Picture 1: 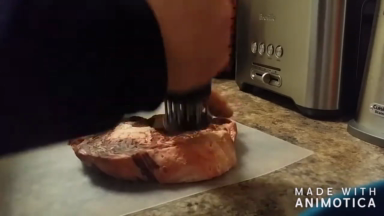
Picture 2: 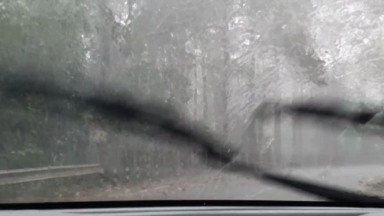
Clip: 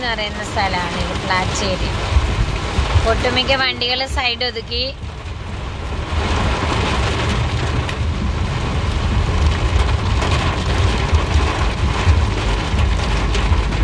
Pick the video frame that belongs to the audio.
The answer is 2